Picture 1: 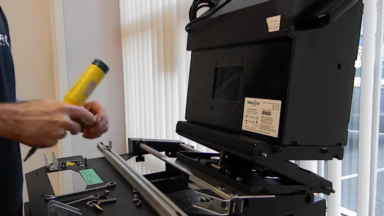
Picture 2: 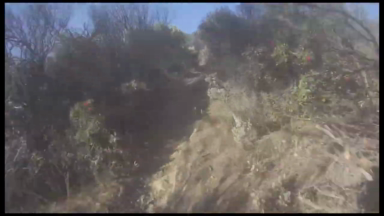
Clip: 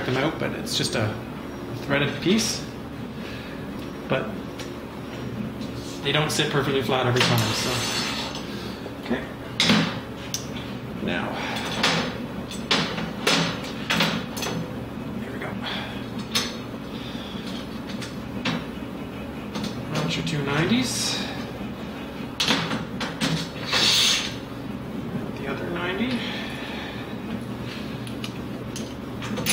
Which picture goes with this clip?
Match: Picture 1